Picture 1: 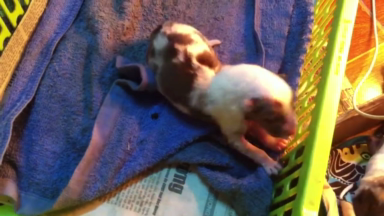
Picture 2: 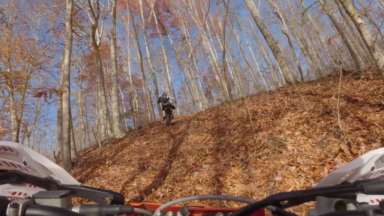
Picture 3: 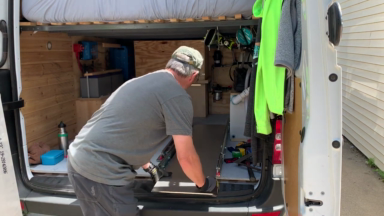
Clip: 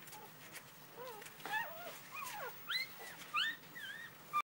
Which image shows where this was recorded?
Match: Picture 1